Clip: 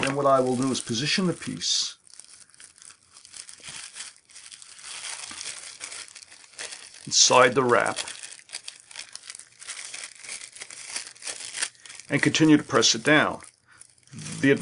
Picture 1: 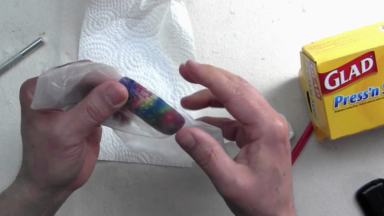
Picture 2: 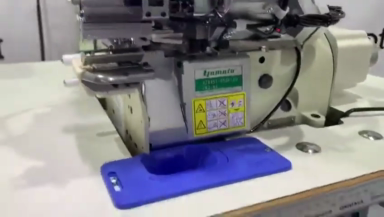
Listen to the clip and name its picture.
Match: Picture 1